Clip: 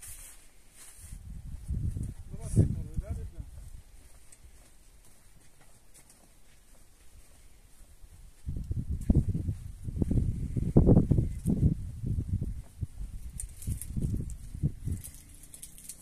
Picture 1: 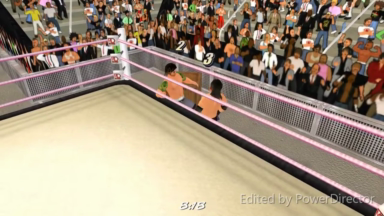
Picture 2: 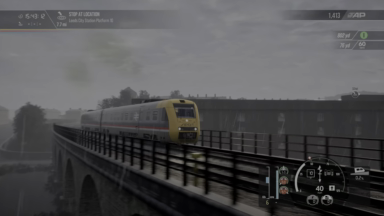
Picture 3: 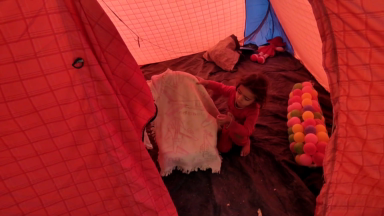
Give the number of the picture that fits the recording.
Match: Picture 3